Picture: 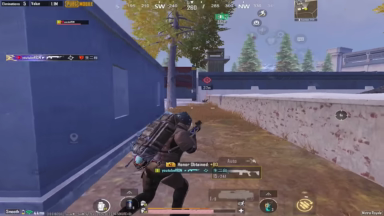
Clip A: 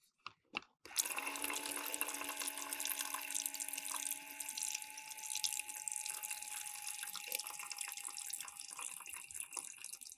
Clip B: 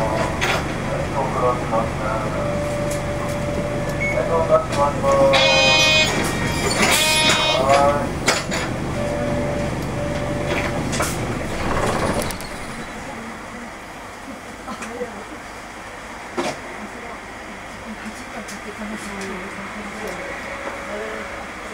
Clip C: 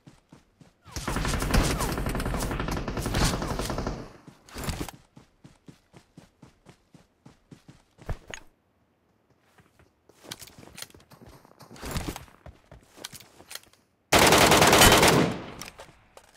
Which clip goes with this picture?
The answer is C